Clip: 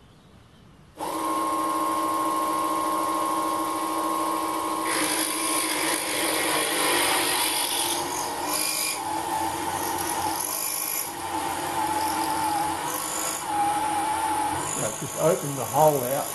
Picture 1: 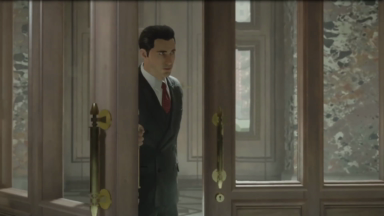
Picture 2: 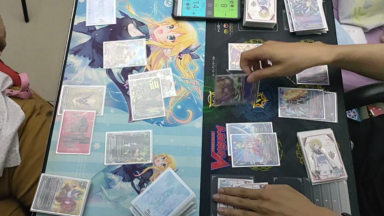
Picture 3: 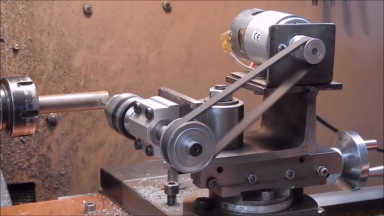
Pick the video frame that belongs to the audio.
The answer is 3